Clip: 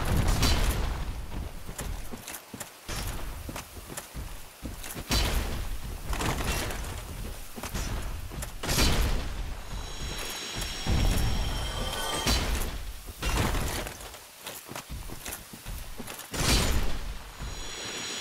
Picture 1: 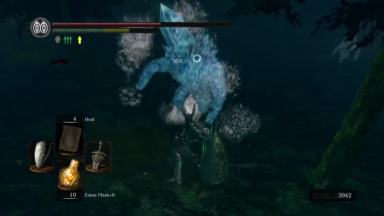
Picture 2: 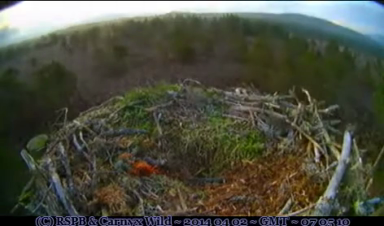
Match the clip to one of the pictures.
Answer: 1